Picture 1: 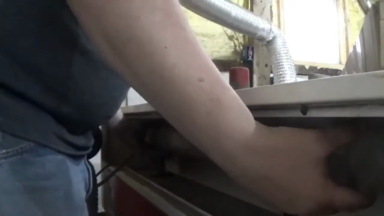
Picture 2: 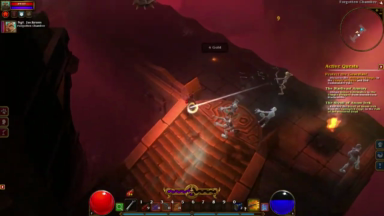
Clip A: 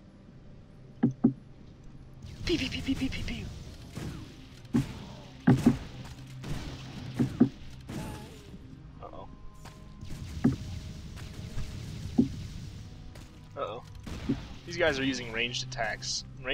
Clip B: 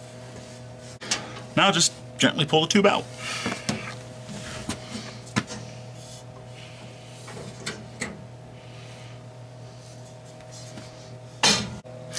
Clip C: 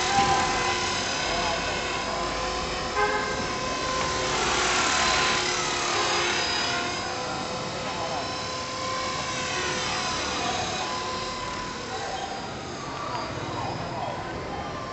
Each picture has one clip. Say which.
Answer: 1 B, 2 A